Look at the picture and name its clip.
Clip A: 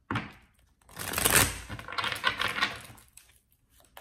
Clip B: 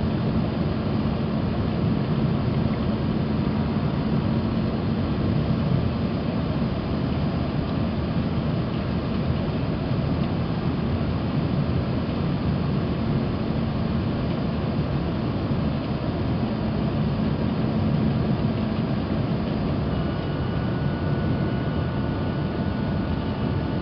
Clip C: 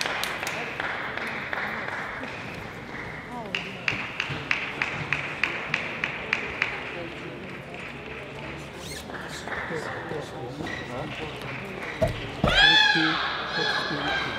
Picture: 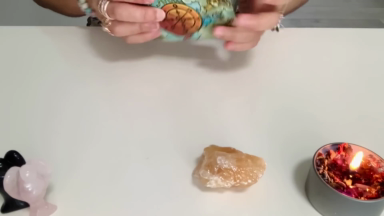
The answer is A